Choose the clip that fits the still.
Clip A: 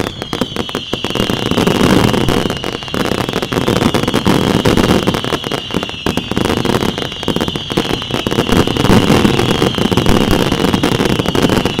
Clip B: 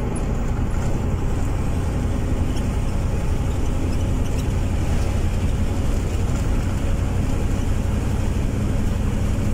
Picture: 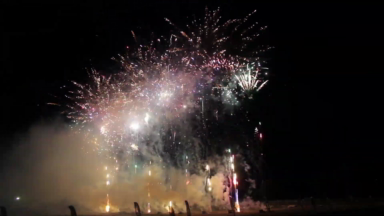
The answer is A